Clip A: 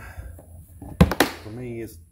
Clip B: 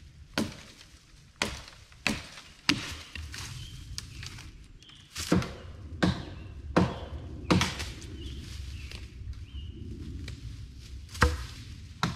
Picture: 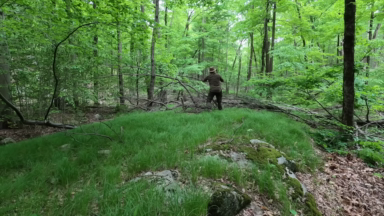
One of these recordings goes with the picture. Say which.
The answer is B